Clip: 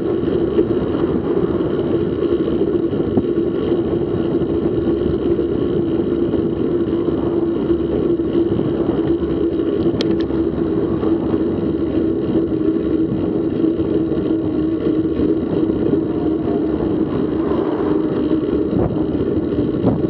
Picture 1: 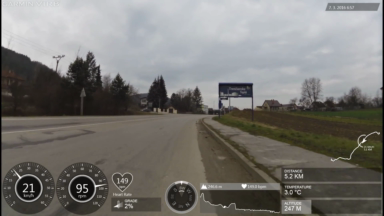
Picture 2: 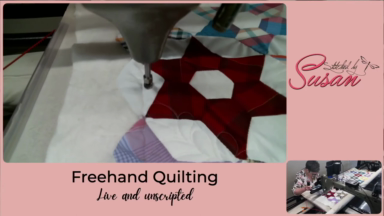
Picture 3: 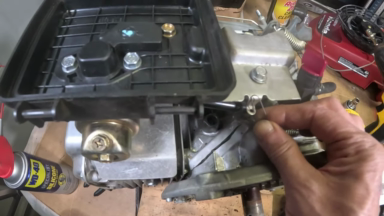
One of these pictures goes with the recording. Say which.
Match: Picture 1